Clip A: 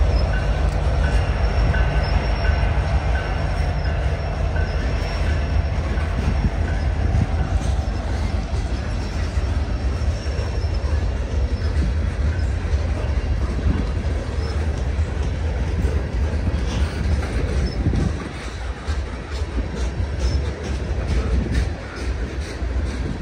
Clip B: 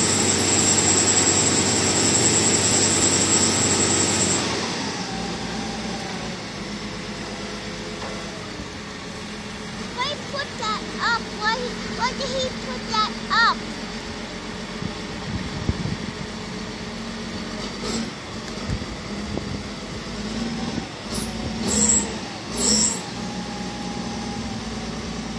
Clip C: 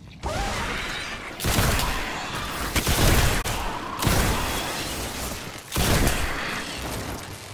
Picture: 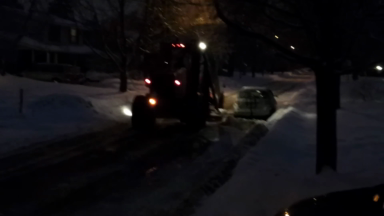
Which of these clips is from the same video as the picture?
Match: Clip B